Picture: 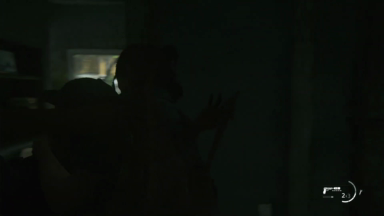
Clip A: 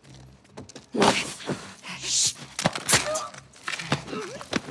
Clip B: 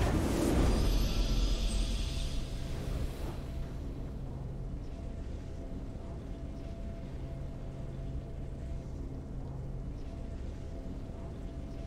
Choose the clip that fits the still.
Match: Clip A